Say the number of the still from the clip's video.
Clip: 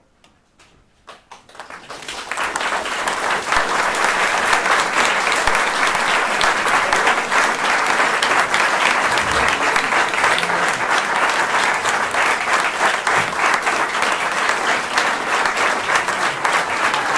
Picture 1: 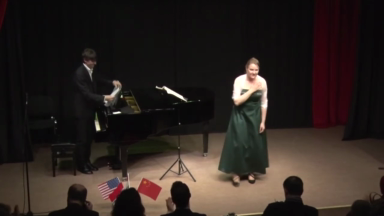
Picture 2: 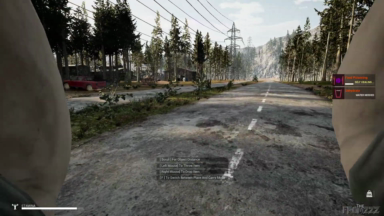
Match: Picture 1